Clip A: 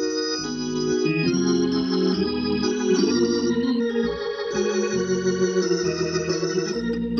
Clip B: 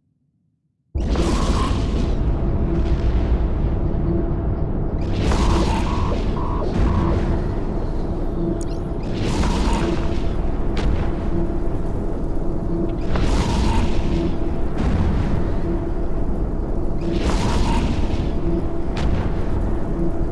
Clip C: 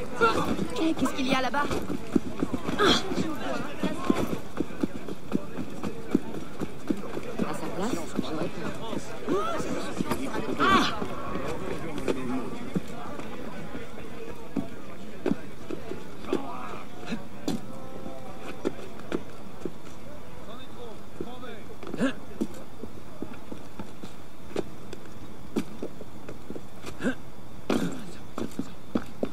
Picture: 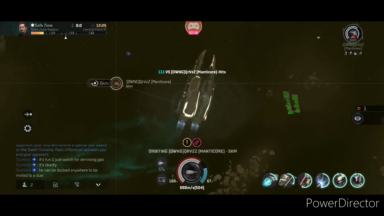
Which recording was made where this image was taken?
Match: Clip B